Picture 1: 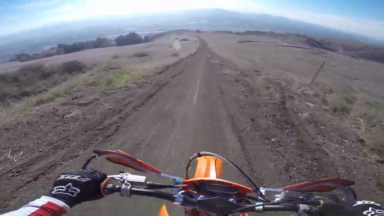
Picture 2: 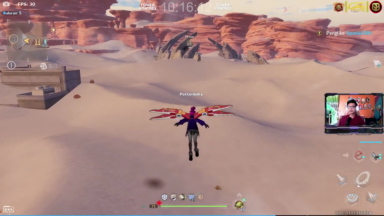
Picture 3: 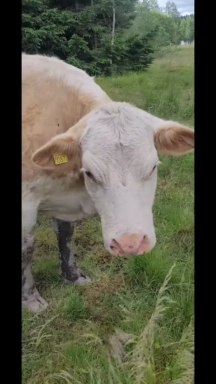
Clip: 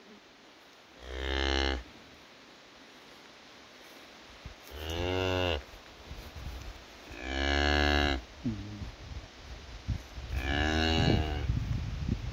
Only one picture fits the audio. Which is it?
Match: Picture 3